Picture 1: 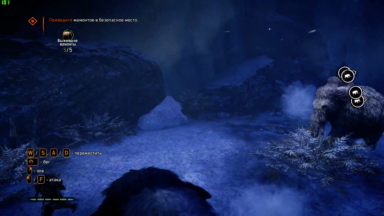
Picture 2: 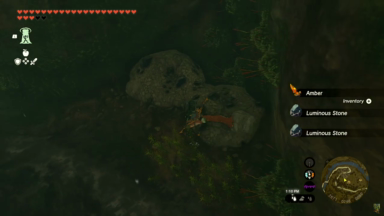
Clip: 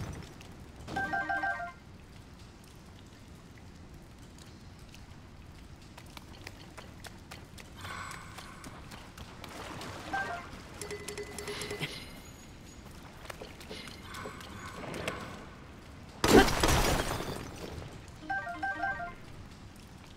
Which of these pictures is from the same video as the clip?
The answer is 2